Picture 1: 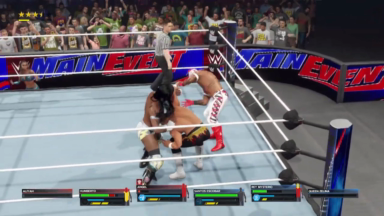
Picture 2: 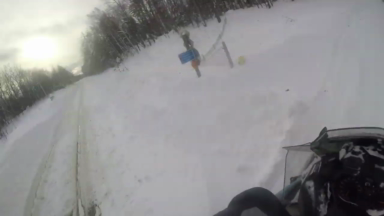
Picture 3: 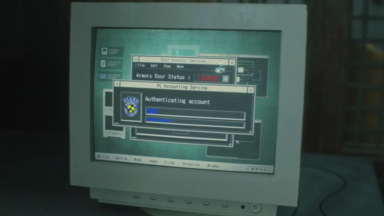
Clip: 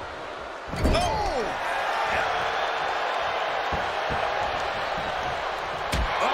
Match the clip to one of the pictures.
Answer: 1